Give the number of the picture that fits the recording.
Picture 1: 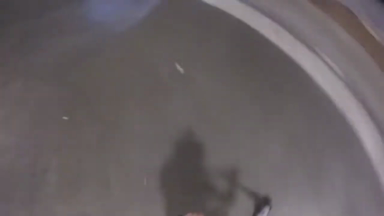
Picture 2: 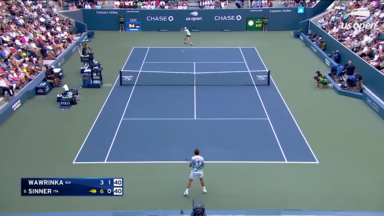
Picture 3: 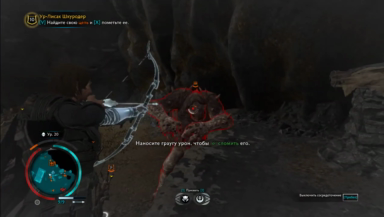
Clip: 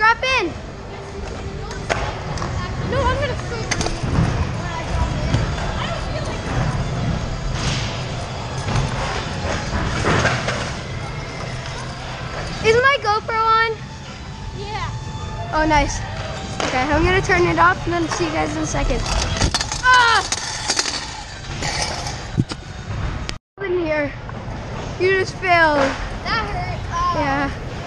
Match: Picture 1